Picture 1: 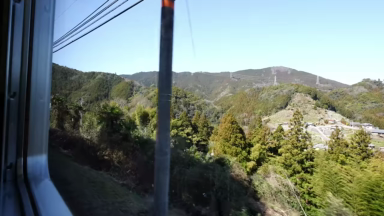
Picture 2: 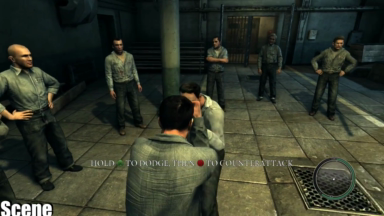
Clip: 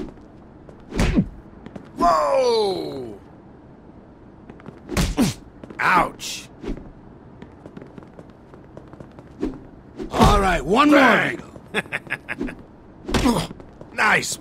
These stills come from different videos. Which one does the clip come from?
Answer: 2